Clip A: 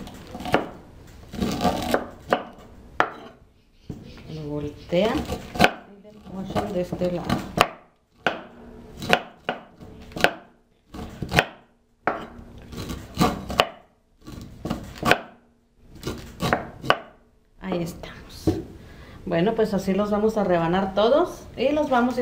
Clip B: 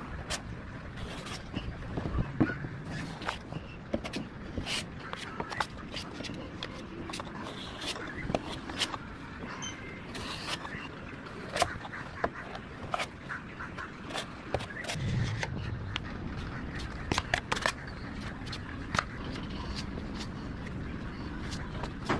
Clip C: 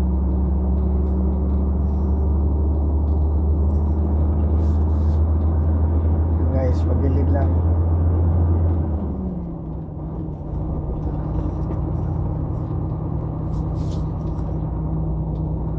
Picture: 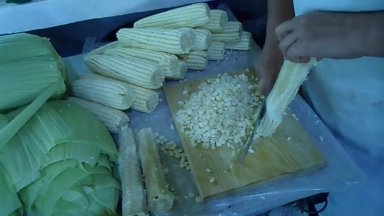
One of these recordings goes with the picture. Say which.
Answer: A